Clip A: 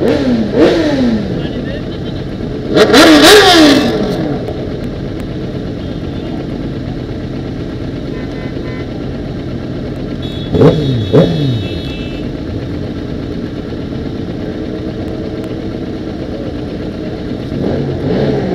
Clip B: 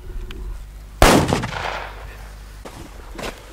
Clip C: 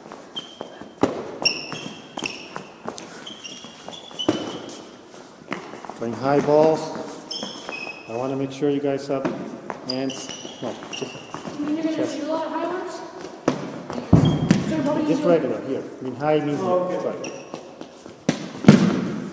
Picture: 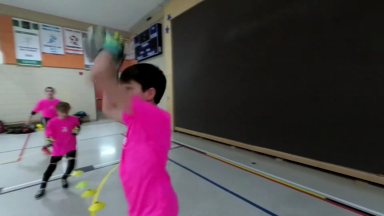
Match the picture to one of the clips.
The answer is C